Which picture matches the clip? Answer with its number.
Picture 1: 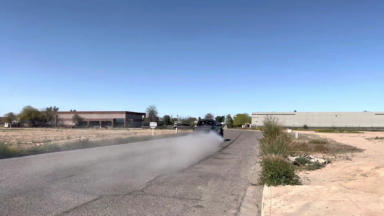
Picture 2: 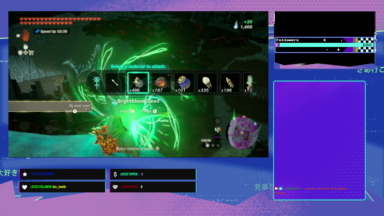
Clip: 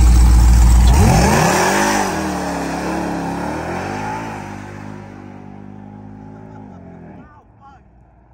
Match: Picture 1